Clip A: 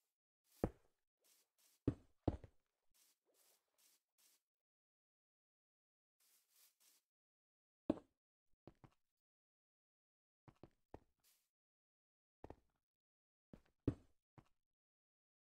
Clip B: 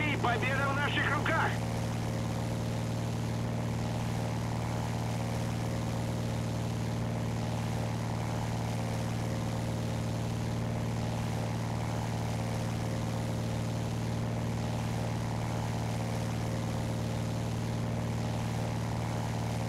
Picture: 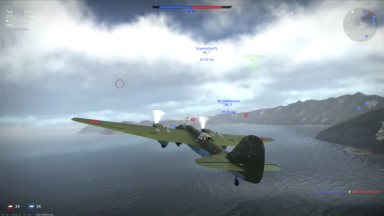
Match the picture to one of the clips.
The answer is B